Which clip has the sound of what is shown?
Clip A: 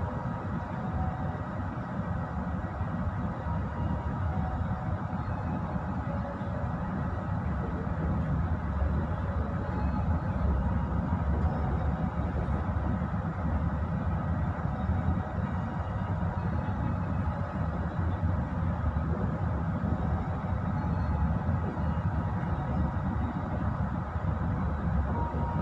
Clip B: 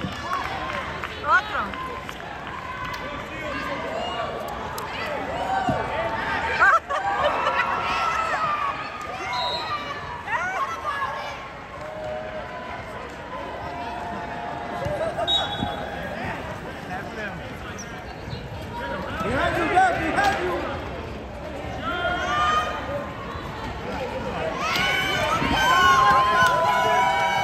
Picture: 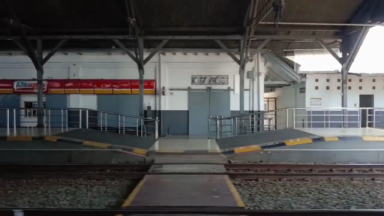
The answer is A